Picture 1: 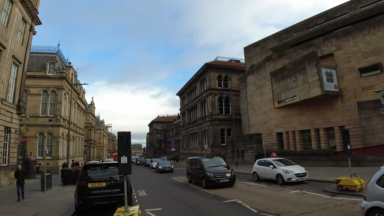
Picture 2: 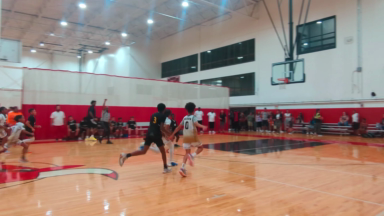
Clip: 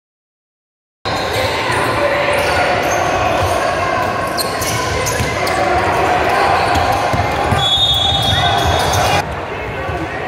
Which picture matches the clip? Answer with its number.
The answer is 2